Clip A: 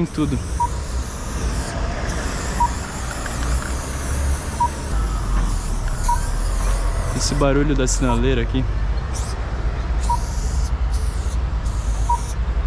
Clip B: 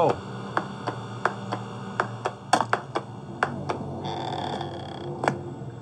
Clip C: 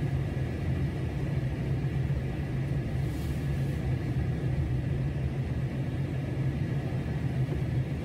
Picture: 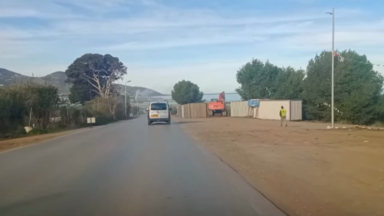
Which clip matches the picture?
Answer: C